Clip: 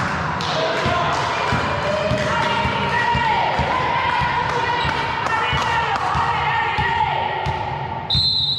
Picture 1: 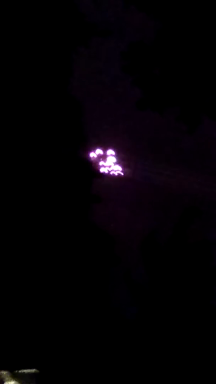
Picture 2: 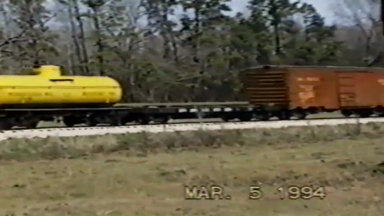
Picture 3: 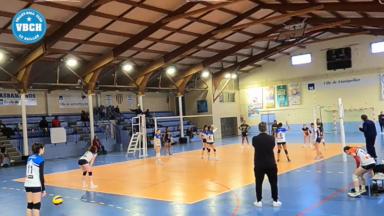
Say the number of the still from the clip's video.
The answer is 3